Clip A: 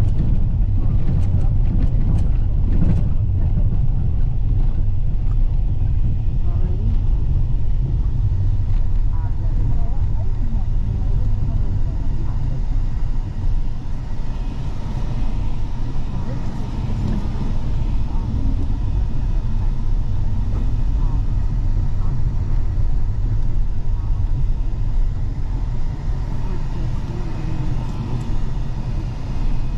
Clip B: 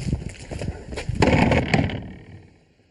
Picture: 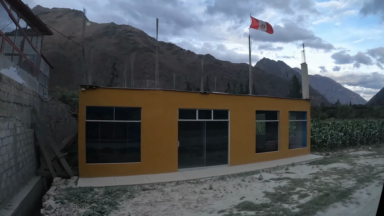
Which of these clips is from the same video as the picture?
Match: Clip A